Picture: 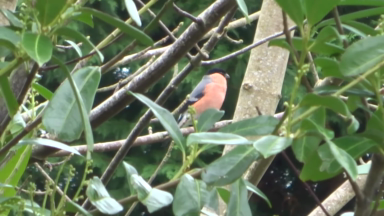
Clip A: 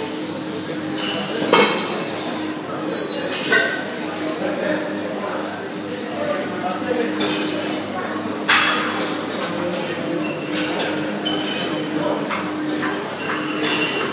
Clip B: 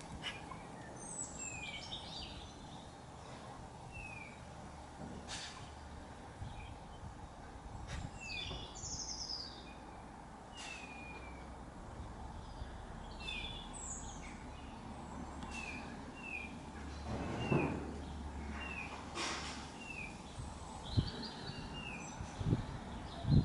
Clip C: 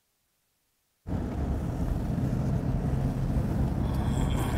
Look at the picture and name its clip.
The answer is B